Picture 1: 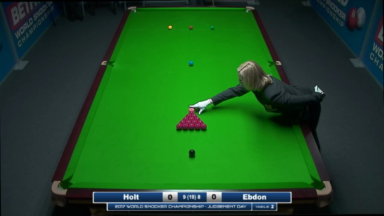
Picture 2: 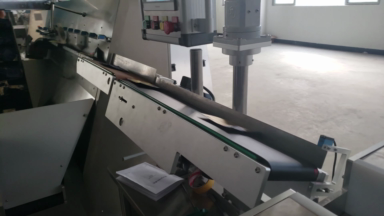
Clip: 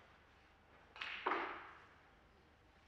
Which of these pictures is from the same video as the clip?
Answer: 1